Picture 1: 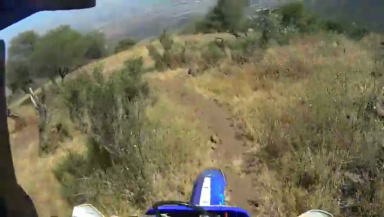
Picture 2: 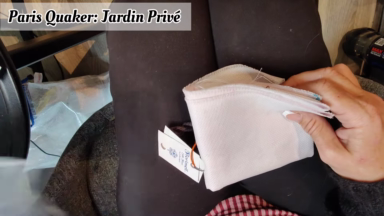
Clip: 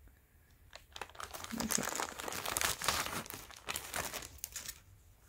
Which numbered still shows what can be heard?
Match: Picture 2